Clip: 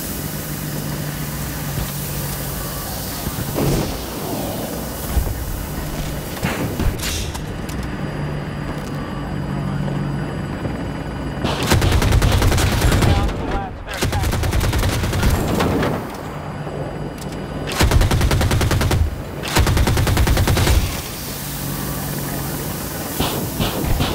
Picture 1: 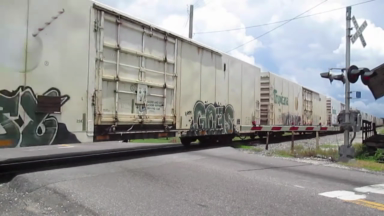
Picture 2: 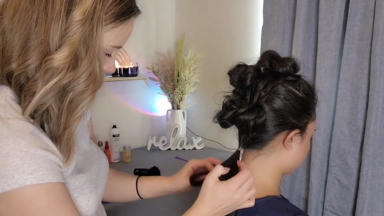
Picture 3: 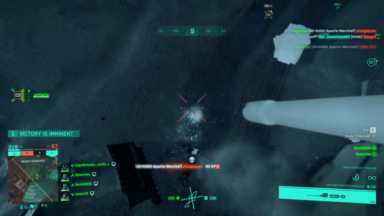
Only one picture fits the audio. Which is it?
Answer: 3